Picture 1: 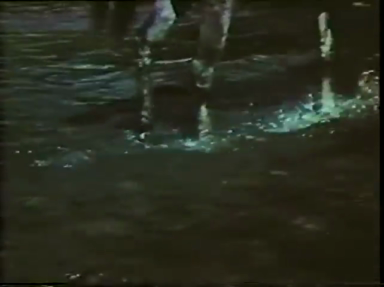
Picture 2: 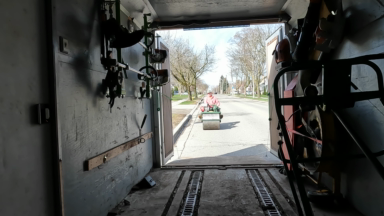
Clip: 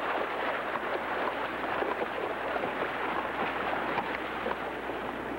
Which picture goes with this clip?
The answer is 1